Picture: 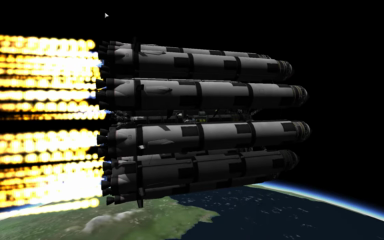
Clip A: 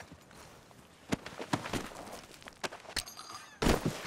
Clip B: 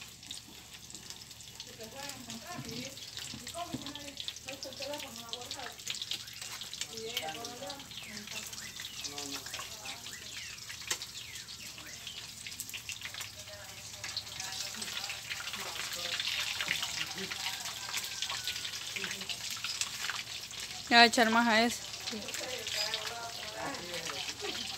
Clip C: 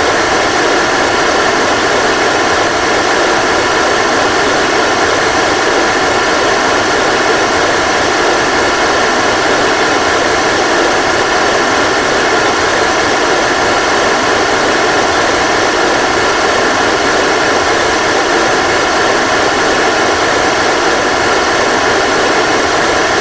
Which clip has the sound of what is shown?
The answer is C